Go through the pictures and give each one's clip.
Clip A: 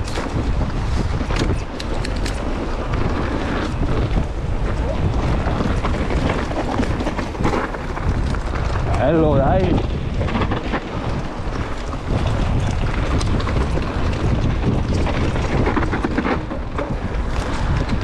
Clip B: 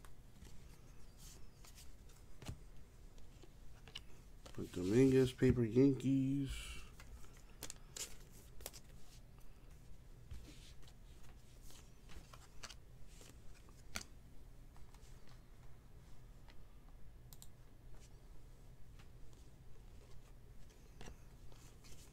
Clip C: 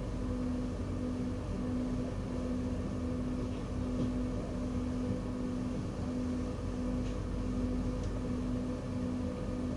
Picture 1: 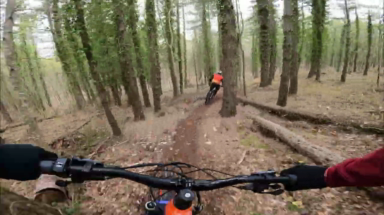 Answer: A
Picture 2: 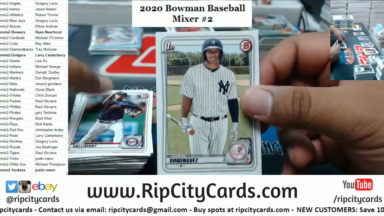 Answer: B